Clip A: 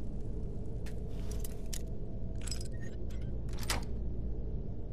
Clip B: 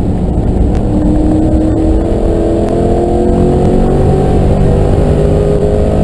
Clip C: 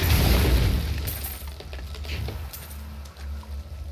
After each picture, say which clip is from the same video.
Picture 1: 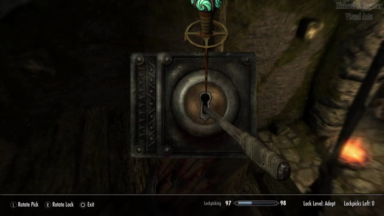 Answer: A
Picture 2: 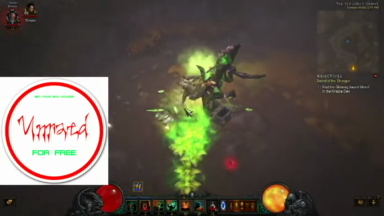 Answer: C